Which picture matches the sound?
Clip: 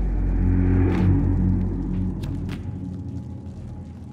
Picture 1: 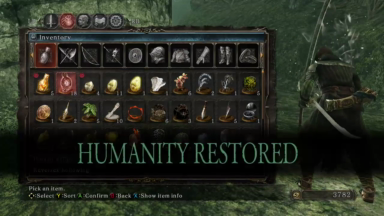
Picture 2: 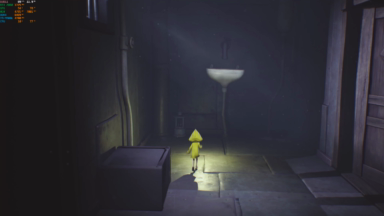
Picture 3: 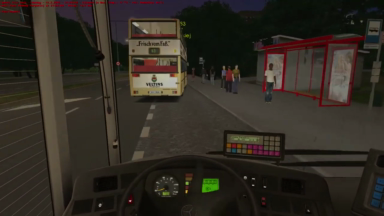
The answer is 2